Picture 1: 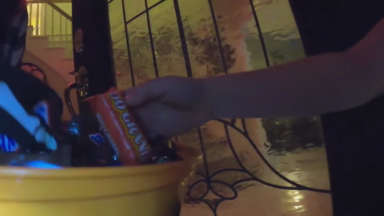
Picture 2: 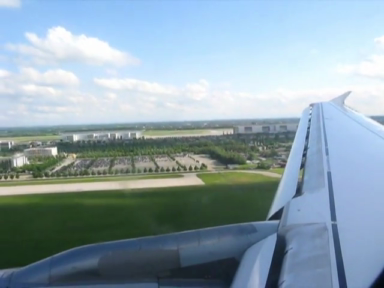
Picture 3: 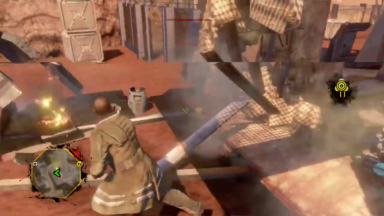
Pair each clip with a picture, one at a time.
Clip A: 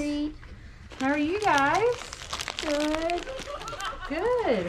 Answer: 1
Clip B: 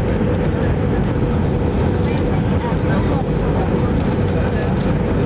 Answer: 2